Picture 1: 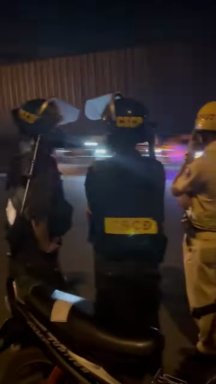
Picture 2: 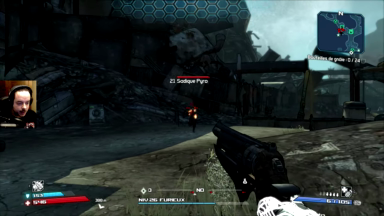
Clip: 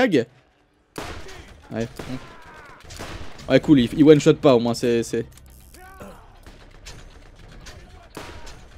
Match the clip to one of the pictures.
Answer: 2